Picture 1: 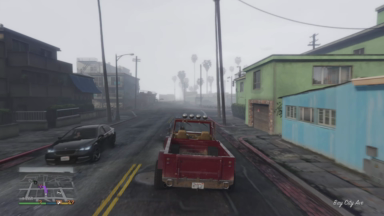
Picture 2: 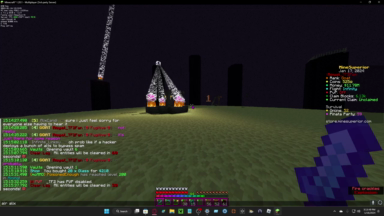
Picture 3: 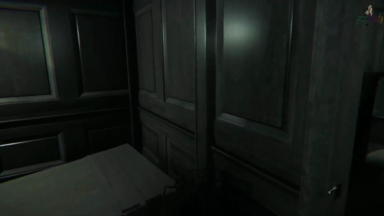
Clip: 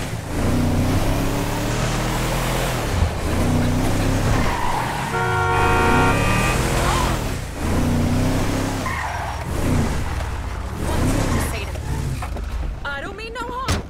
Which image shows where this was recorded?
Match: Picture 1